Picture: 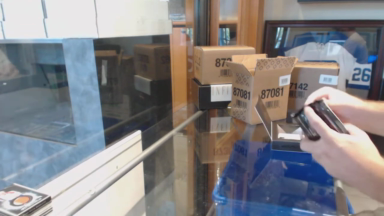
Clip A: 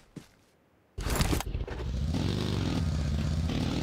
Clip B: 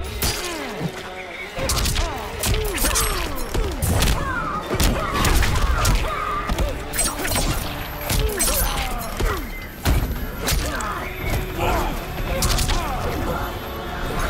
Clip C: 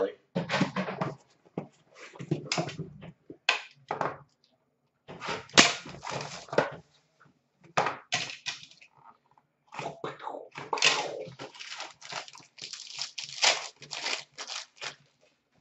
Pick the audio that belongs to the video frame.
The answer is C